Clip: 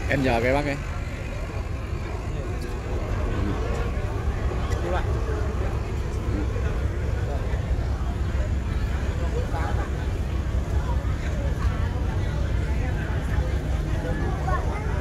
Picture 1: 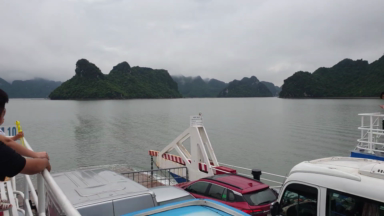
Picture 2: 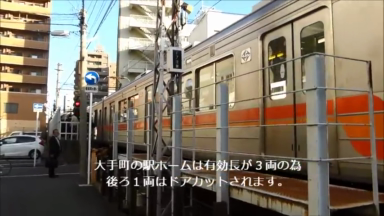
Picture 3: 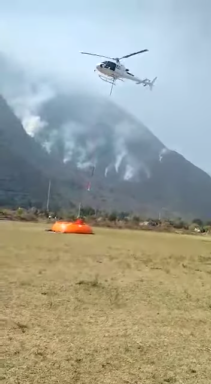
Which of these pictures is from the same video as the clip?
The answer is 1